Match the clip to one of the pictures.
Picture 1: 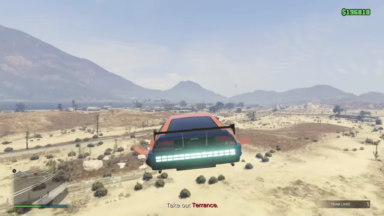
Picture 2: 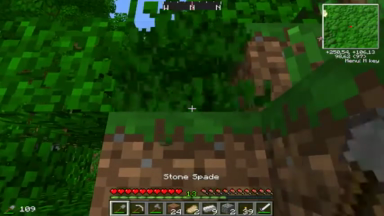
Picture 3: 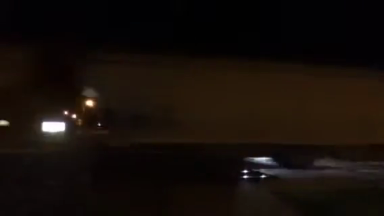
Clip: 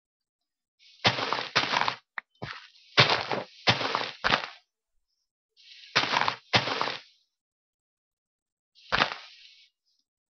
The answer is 2